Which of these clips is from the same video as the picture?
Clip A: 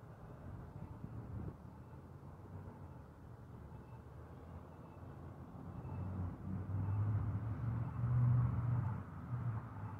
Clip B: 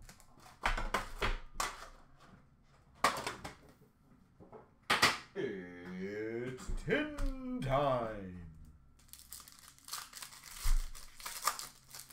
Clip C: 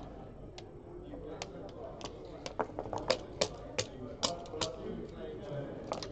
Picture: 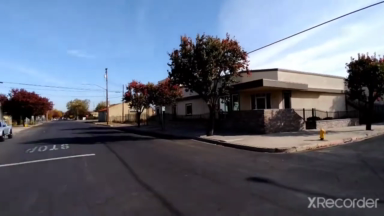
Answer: A